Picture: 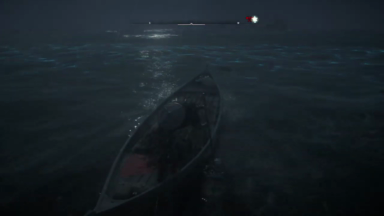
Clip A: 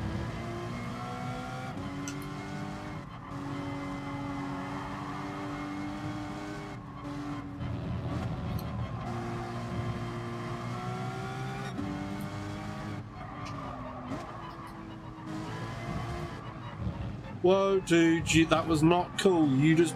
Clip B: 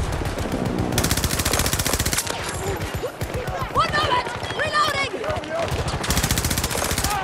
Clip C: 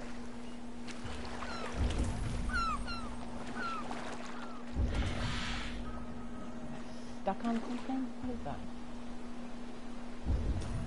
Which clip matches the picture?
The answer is C